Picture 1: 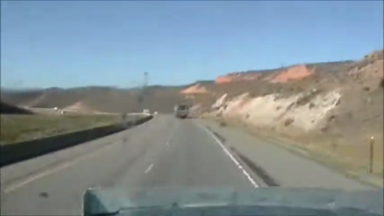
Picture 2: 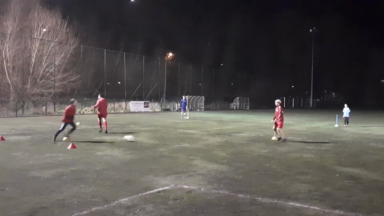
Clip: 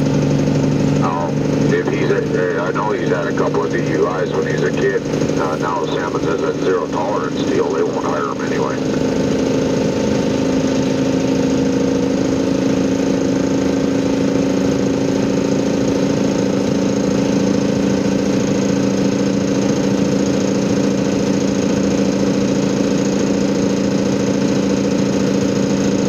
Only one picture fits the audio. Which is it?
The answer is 1